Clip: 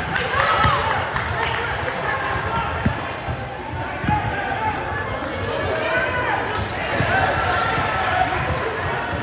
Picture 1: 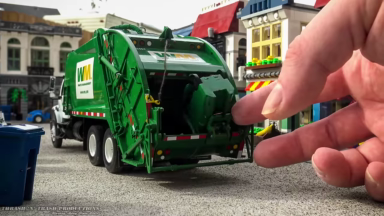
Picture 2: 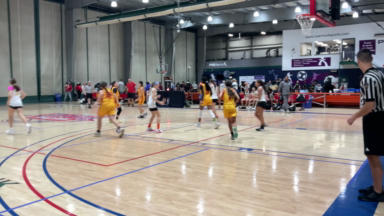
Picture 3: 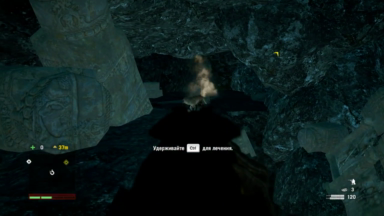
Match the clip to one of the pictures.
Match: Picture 2